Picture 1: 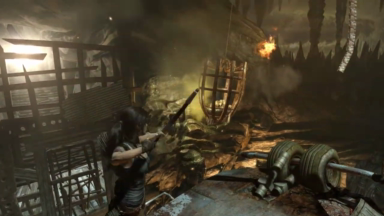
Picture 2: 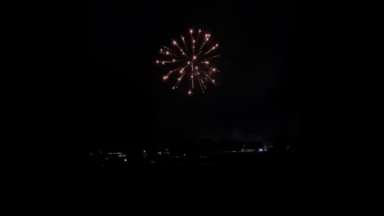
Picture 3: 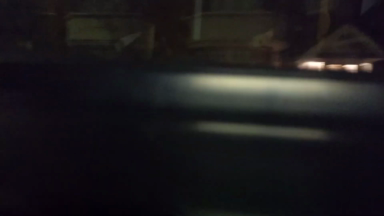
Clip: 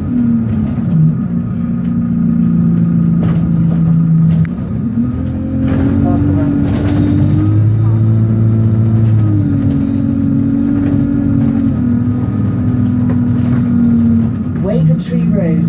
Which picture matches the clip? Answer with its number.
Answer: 3